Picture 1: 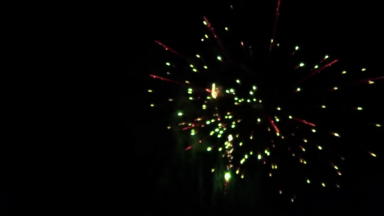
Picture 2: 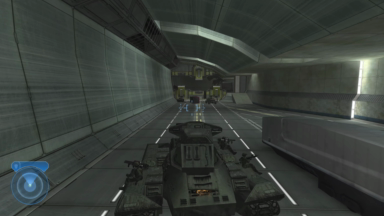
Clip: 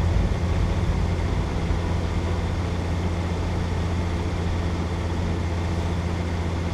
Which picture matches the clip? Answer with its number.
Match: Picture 2